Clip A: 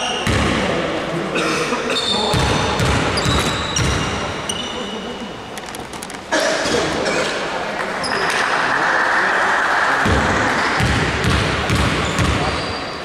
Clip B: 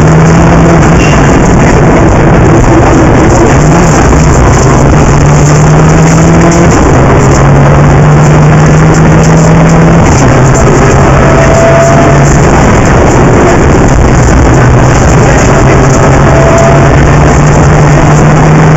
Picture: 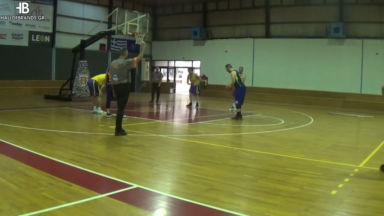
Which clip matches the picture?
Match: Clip A